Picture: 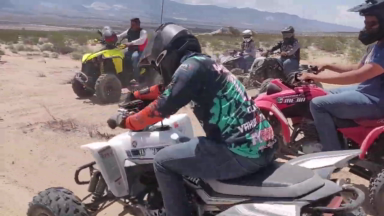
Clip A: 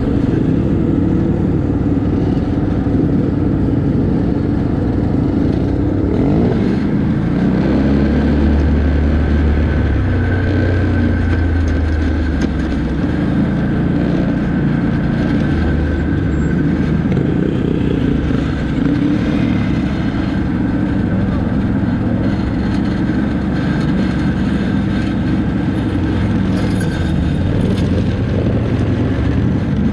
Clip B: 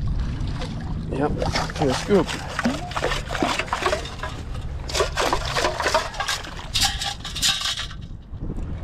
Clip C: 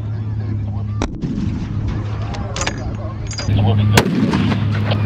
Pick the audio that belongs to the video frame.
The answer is A